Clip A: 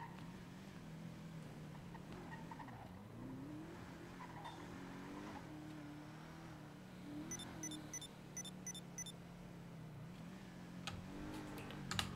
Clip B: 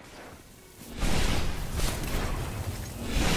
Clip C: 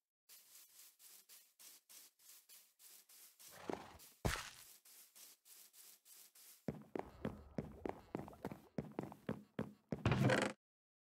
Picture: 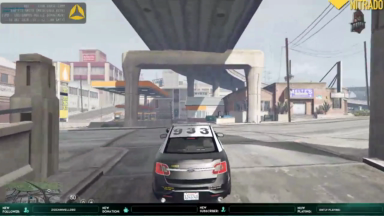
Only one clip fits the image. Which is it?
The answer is A